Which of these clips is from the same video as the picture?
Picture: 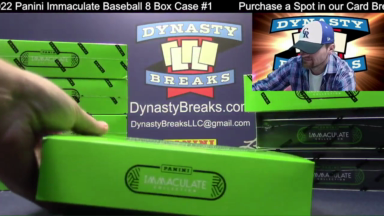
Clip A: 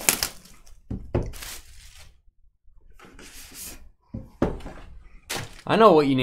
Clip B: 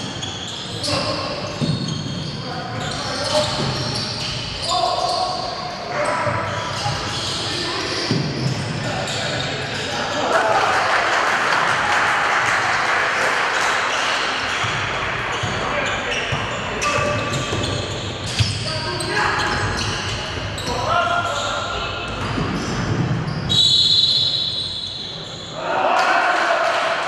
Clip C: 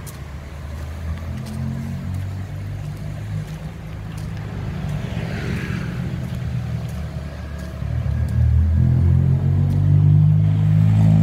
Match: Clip A